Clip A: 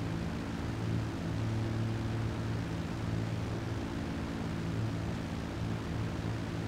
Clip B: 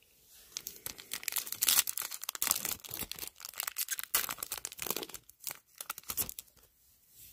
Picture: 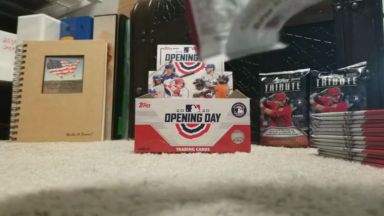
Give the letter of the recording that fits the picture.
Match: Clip B